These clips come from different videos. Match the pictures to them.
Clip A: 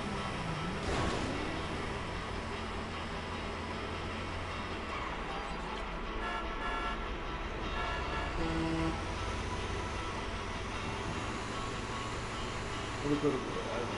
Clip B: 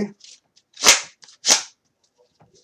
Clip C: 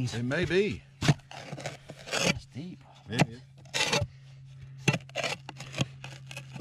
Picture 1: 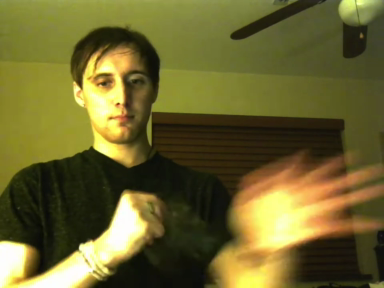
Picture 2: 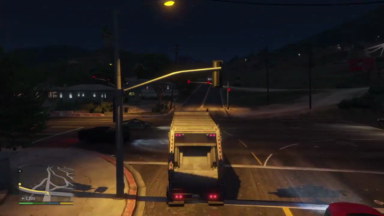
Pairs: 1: B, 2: A